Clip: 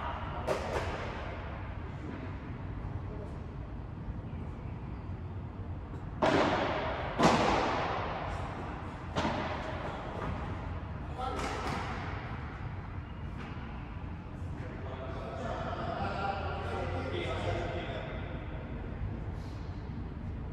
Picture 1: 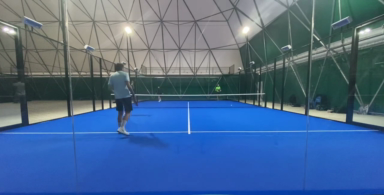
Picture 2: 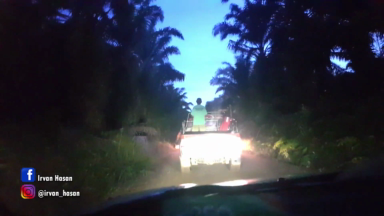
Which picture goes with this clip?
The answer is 1